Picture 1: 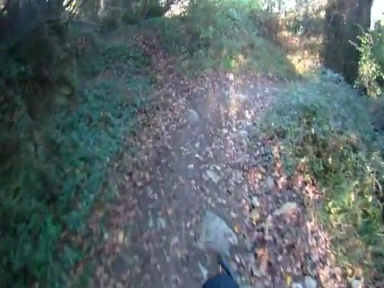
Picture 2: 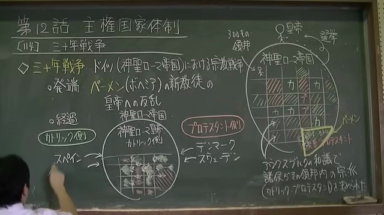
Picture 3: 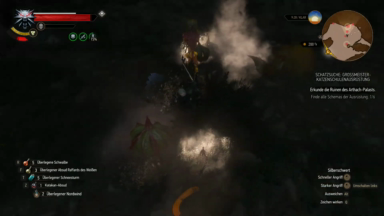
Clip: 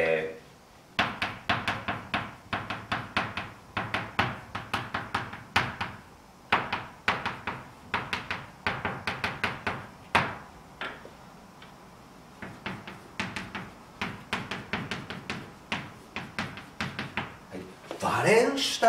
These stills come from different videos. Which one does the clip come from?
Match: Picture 2